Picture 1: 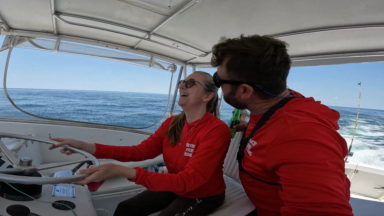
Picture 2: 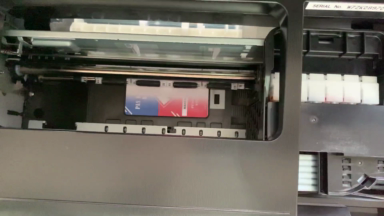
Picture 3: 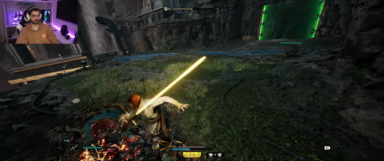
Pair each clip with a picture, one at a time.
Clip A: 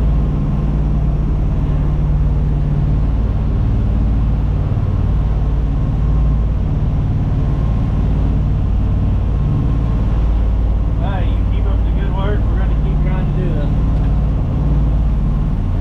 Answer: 1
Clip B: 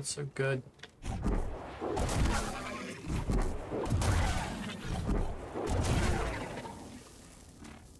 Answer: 3